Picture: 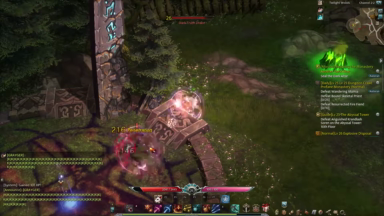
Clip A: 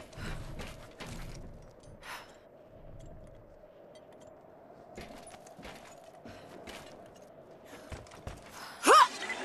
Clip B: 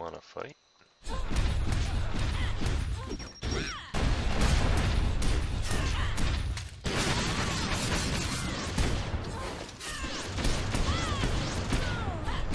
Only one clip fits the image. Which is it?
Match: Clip B